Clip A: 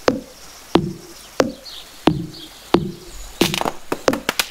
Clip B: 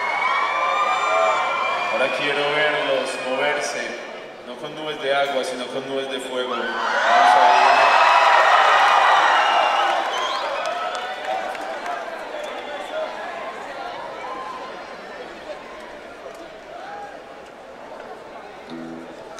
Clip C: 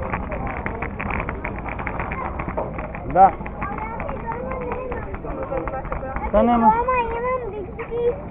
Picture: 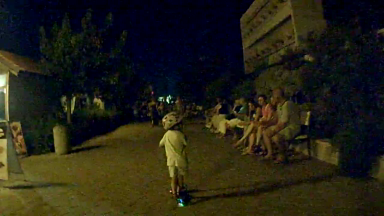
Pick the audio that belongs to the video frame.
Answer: C